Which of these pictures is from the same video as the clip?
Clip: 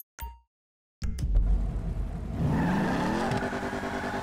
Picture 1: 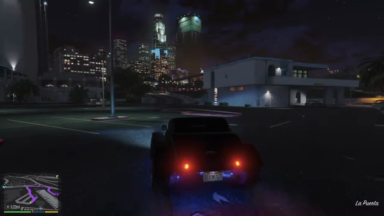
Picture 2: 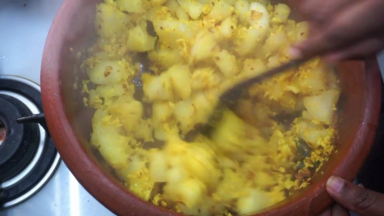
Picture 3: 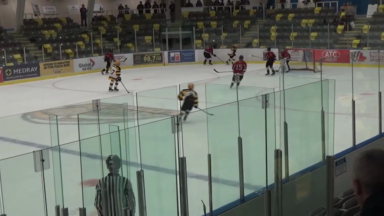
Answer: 1